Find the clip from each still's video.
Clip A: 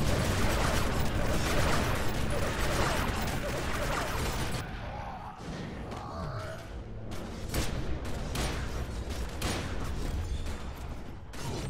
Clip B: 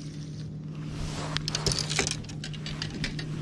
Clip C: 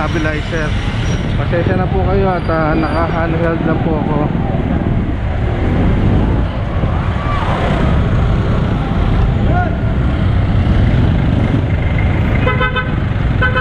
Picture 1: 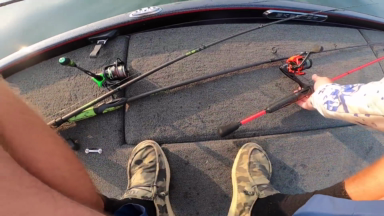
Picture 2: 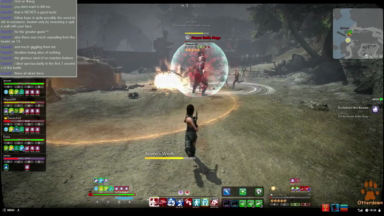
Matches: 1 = B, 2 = A